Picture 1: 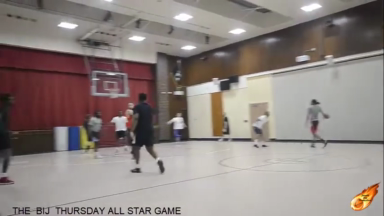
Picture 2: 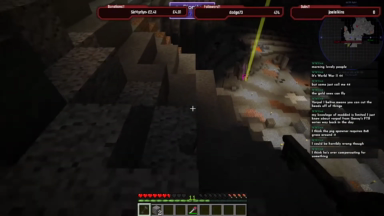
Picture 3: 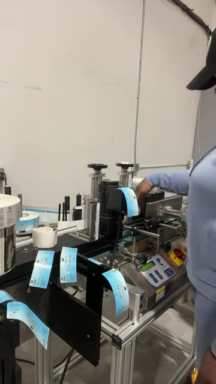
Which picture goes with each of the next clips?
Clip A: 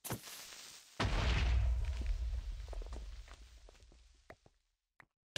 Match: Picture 2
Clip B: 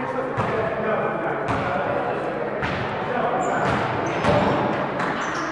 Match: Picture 1